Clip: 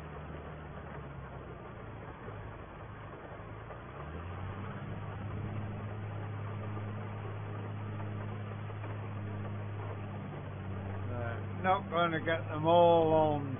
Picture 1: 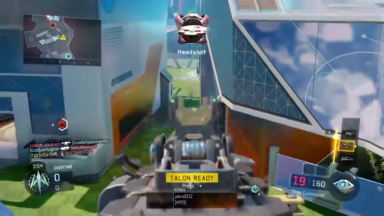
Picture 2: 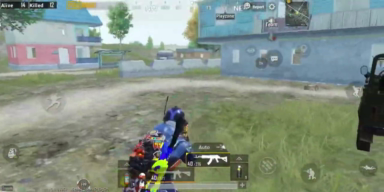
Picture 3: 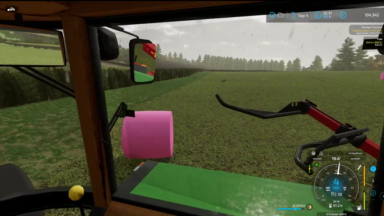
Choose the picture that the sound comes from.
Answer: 3